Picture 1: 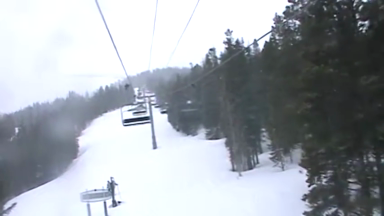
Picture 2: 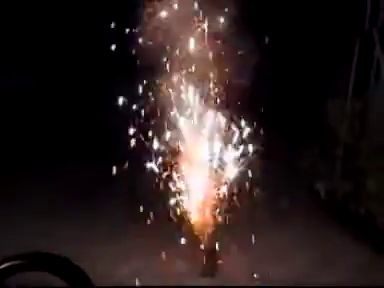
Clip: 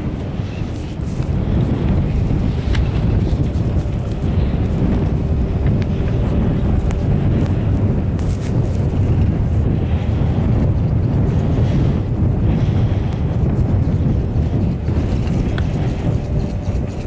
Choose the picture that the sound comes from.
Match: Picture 1